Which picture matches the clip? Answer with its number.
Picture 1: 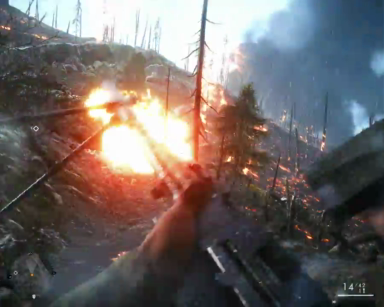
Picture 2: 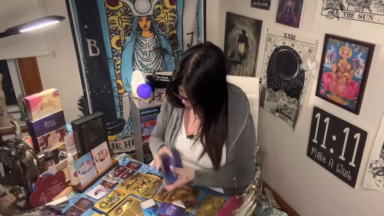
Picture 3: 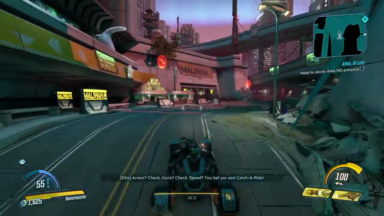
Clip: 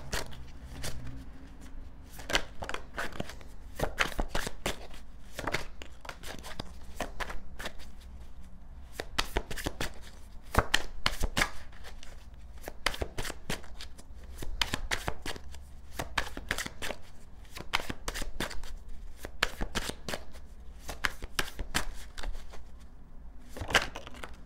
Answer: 2